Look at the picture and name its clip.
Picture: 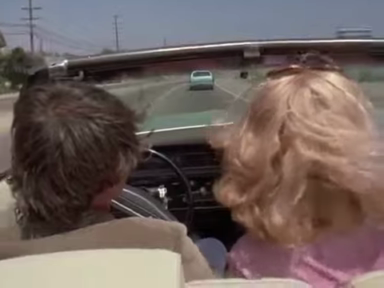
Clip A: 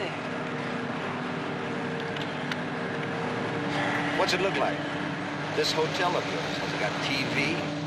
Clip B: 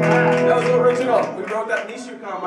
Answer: A